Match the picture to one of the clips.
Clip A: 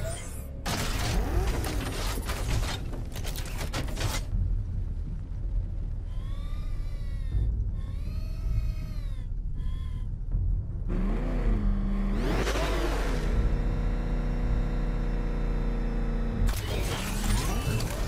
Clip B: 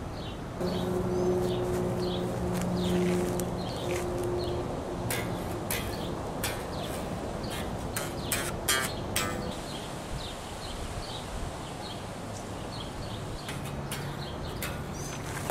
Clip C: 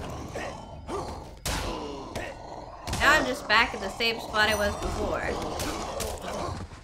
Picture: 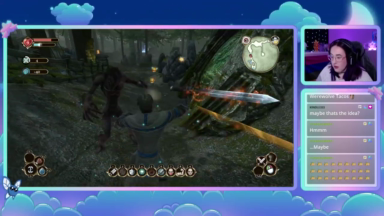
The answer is C